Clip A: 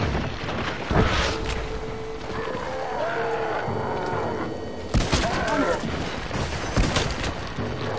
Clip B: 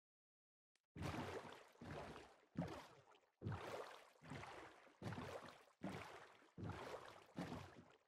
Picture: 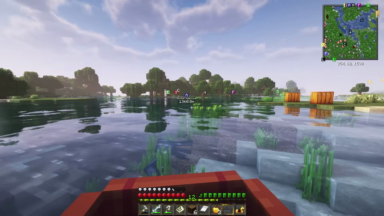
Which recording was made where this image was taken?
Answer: B